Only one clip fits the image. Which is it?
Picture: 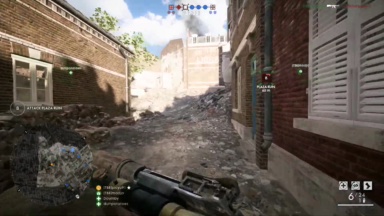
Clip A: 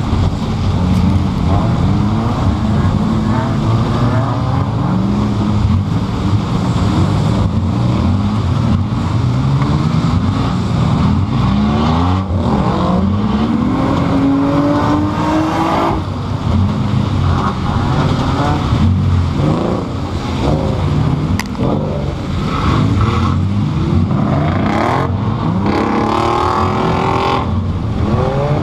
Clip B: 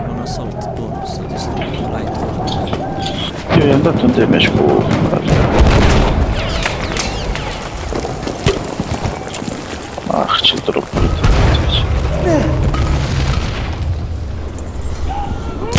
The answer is B